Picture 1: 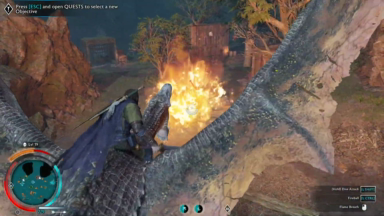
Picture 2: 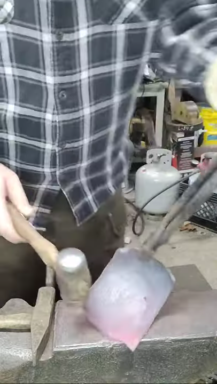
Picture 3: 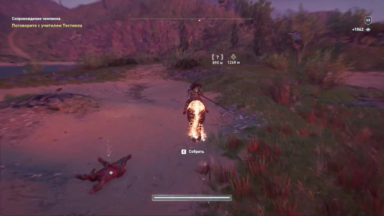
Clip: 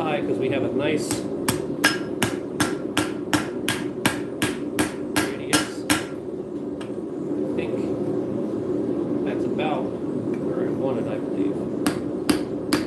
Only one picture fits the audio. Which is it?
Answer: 2